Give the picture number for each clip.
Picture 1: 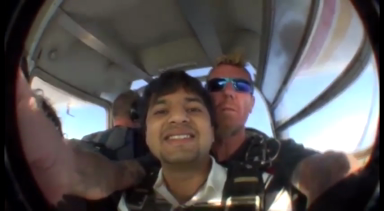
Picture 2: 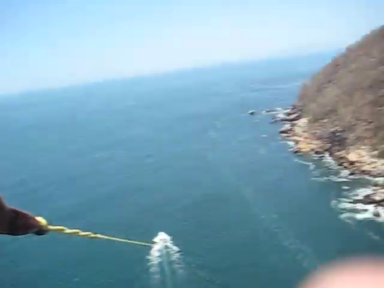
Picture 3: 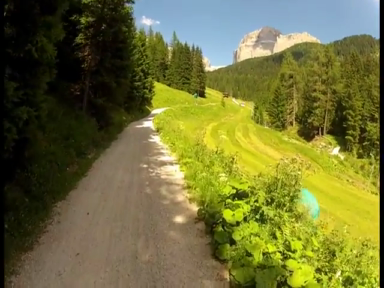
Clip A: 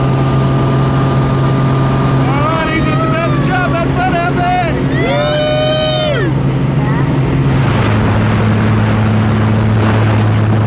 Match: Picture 1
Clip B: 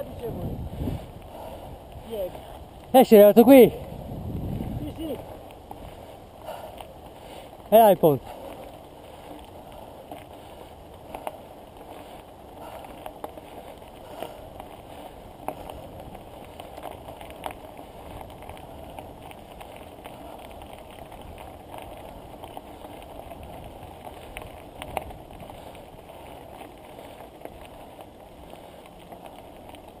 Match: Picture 3